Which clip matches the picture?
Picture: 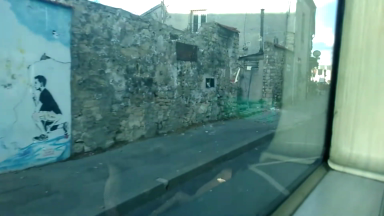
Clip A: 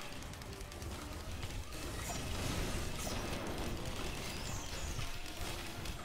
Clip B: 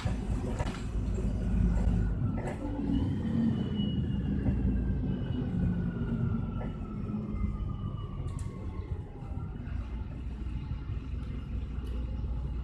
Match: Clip B